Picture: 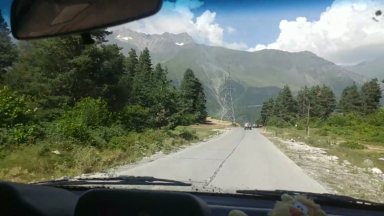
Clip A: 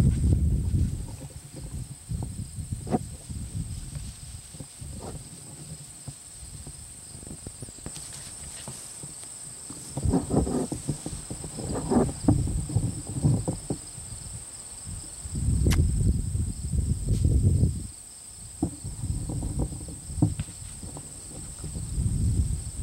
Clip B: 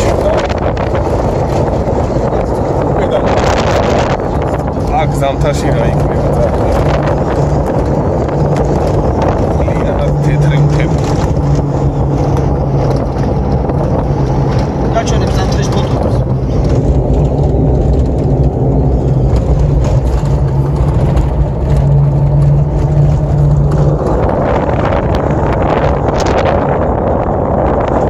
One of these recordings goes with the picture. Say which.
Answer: B